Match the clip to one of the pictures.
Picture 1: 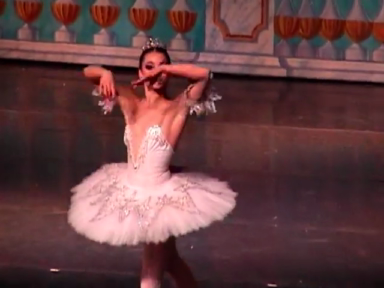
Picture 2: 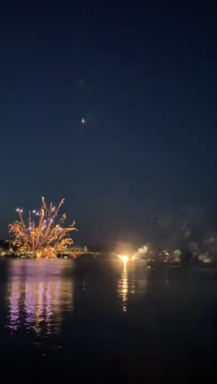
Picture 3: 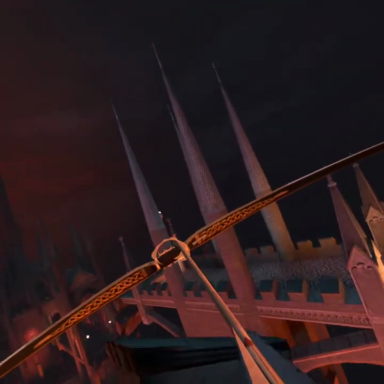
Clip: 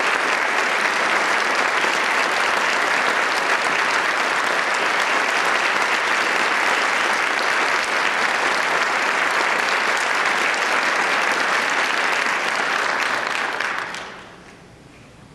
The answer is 1